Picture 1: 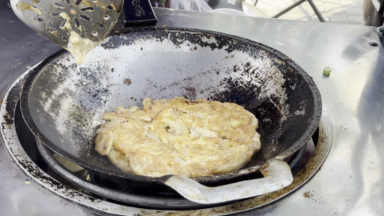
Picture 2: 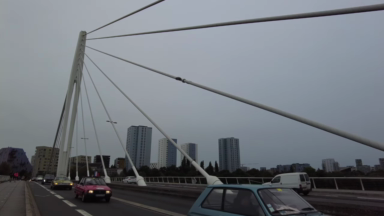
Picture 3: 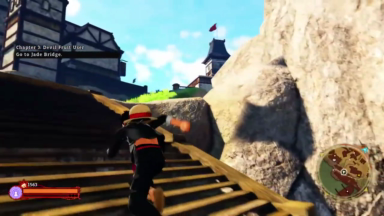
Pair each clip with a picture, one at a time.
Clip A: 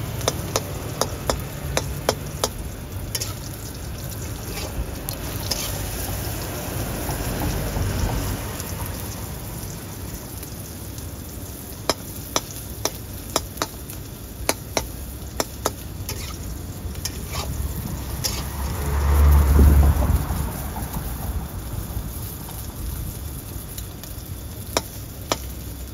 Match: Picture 1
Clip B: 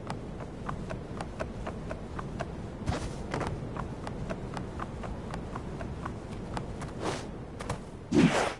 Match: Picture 3